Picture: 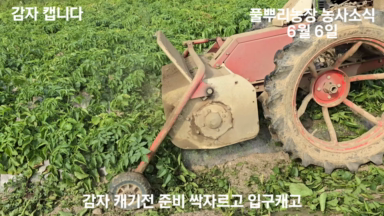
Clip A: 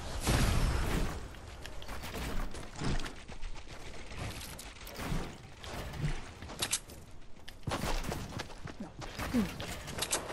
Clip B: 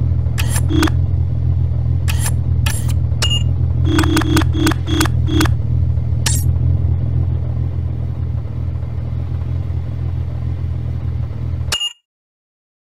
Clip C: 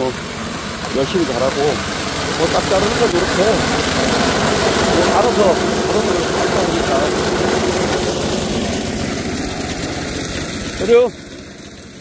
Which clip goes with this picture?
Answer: C